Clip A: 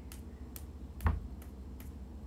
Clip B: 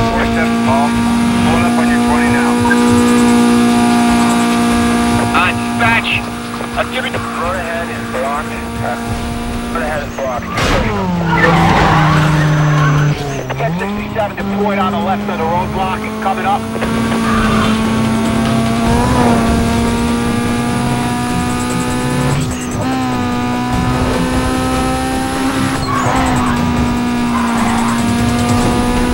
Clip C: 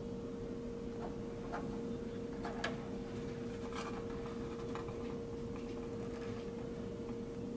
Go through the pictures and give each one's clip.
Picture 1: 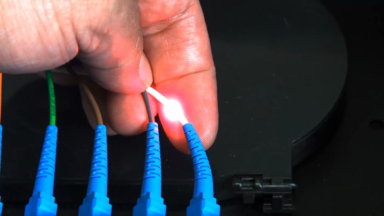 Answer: C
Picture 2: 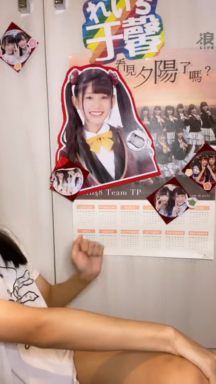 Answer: A